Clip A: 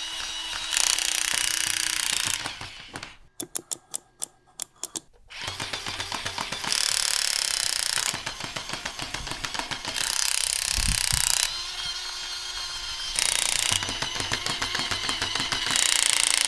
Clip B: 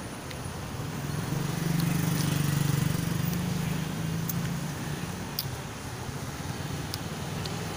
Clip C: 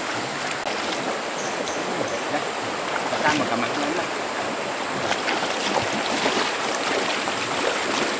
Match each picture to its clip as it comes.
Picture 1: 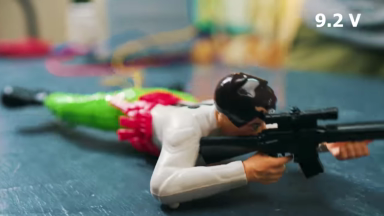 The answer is A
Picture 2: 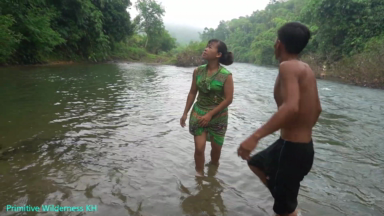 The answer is C